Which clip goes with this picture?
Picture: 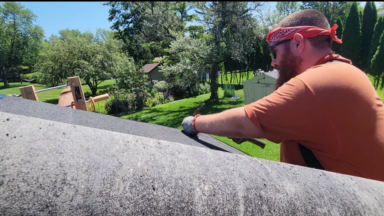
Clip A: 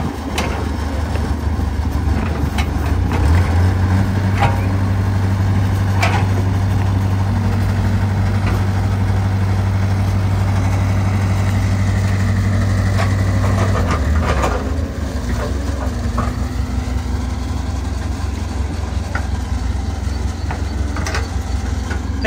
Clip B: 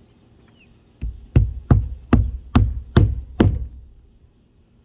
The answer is B